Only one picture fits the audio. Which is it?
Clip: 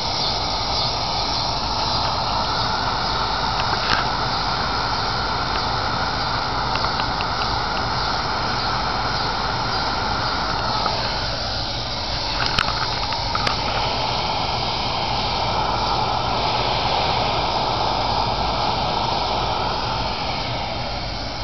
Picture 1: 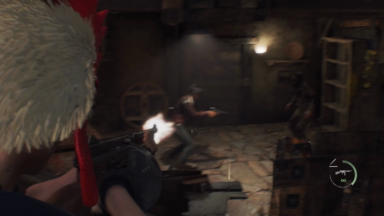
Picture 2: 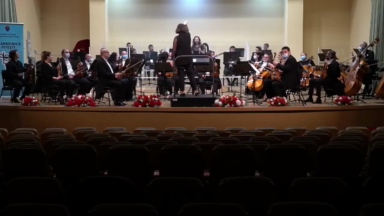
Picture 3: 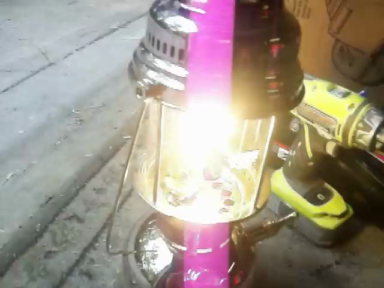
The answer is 3